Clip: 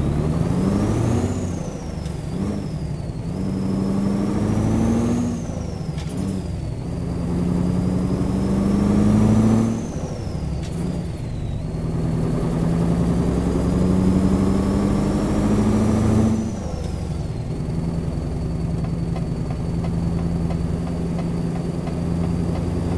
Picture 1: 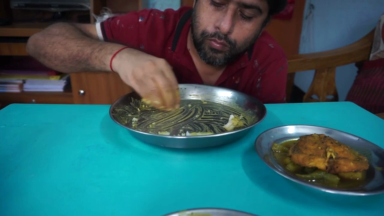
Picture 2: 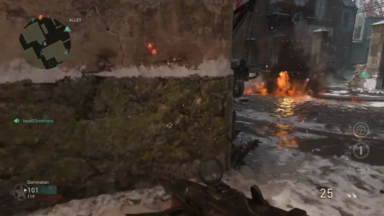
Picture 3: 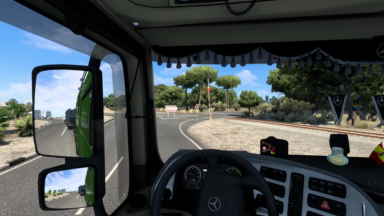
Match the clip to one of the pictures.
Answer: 3